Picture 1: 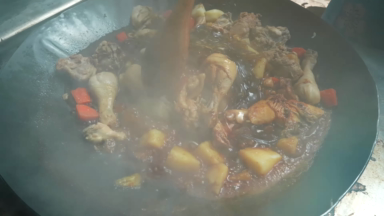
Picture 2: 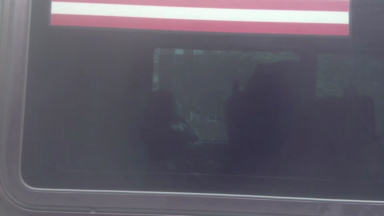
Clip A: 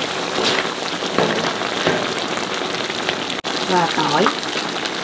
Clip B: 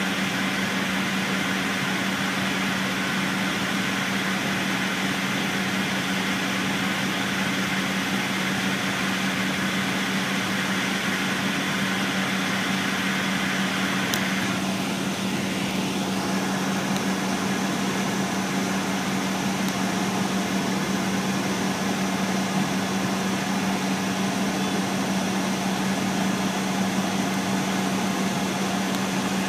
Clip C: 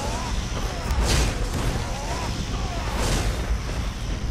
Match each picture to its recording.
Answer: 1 A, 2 B